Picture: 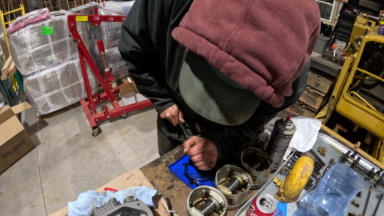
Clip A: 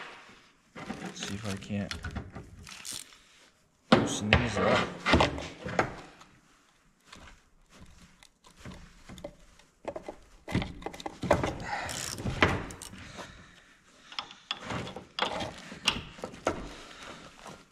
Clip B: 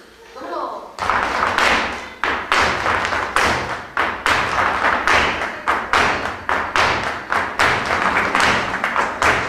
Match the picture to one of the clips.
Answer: A